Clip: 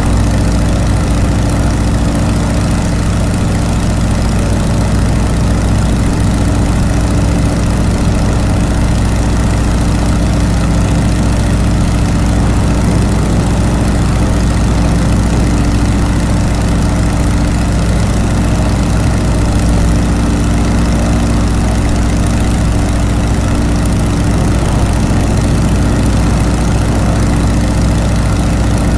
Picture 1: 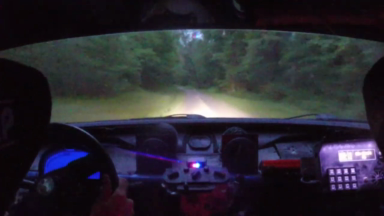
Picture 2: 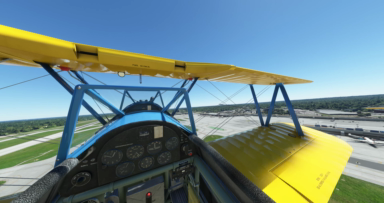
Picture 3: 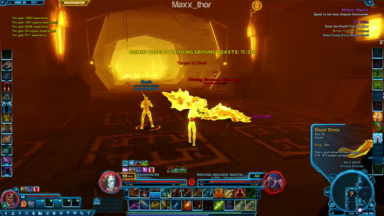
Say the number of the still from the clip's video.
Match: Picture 2